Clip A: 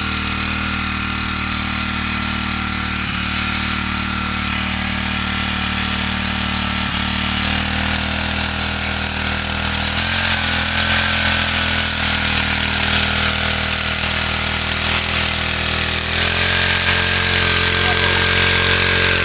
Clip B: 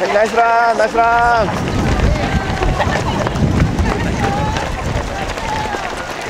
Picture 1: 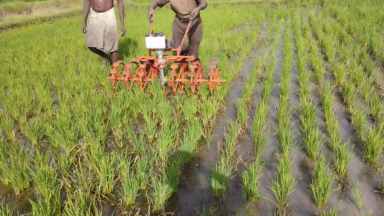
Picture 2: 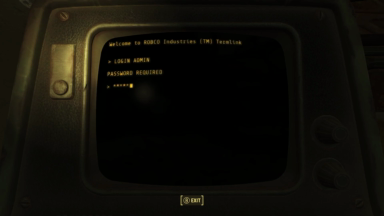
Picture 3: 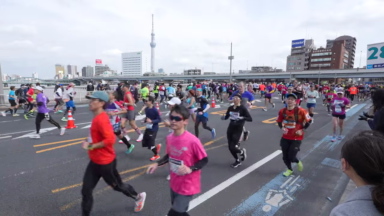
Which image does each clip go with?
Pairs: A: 1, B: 3